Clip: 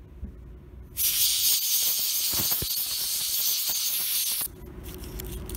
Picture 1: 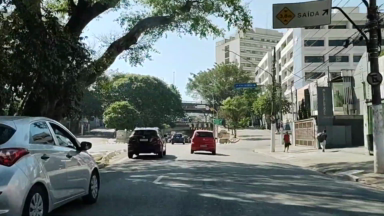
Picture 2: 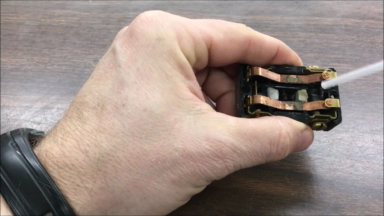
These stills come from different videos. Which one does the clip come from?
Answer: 2